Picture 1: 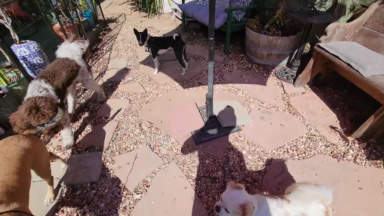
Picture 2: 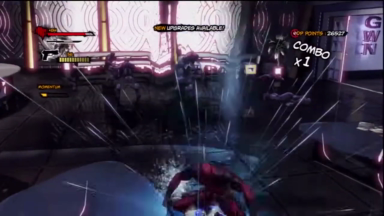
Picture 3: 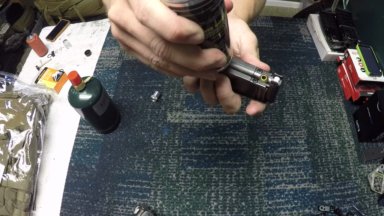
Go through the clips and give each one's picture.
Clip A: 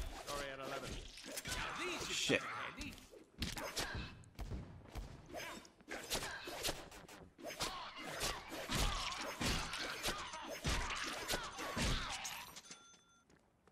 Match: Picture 2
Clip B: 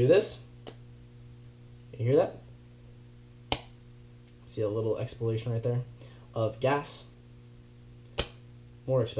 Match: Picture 3